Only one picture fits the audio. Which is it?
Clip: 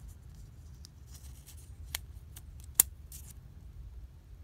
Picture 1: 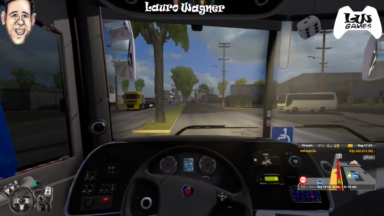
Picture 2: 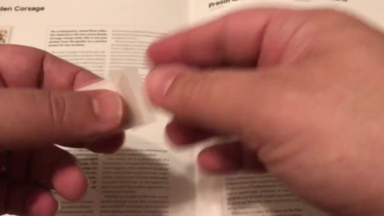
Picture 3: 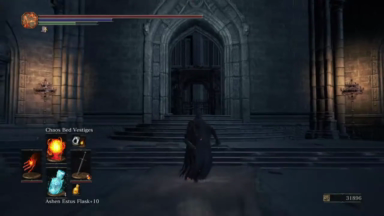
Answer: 2